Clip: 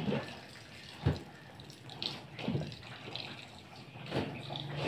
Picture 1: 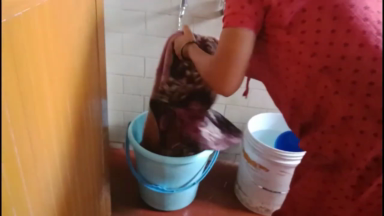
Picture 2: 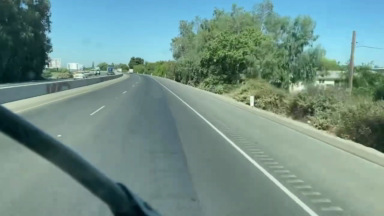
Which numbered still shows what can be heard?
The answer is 1